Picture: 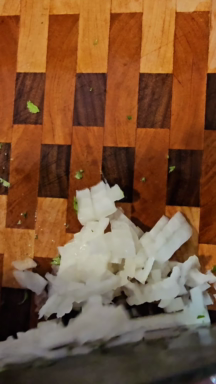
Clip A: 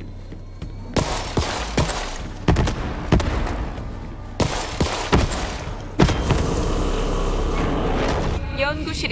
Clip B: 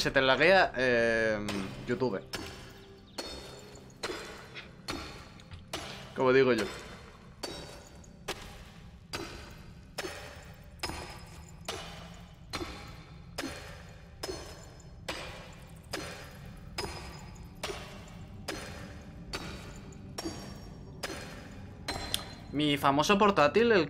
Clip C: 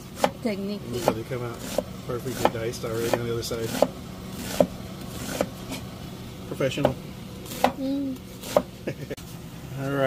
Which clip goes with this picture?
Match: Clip C